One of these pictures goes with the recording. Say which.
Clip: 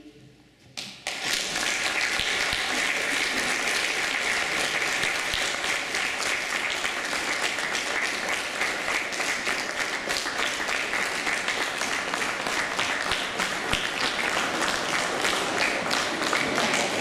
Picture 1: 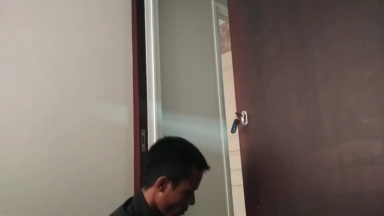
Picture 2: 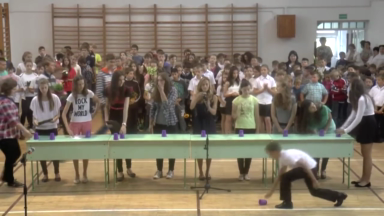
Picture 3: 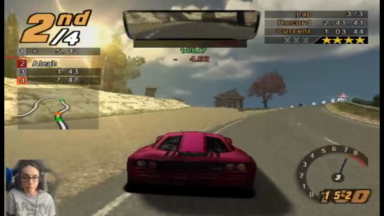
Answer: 2